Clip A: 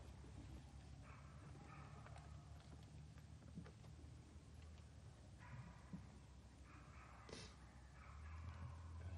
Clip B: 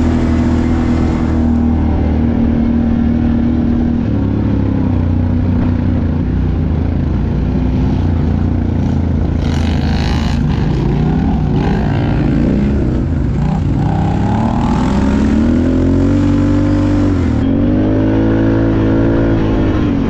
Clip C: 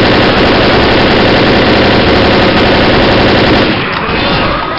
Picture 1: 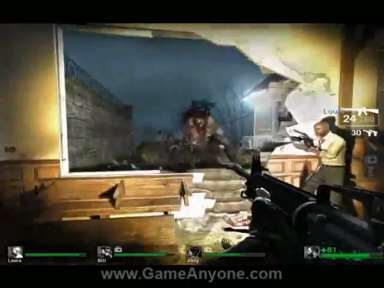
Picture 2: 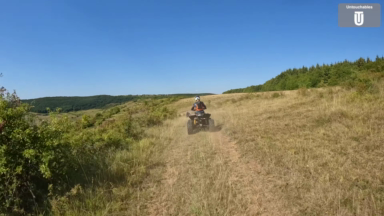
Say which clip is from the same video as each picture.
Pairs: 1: C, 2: B